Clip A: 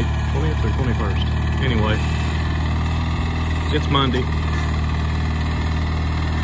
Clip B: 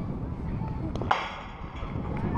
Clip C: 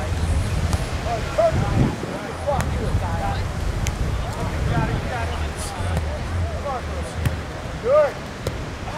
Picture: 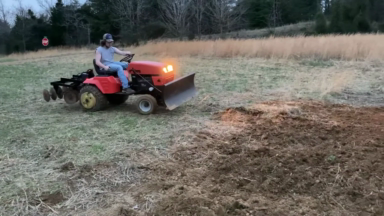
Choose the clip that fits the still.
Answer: A